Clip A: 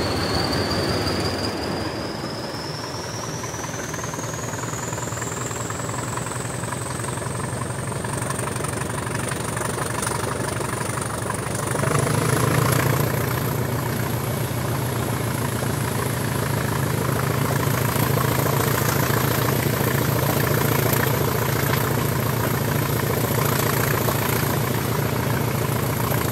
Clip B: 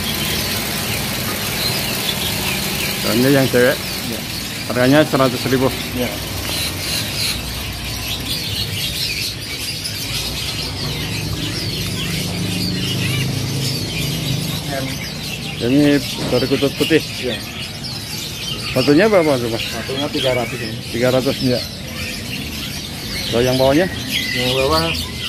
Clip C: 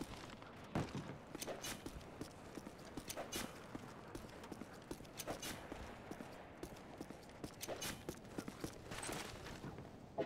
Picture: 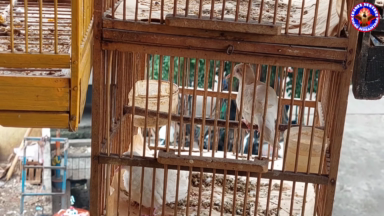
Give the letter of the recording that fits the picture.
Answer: B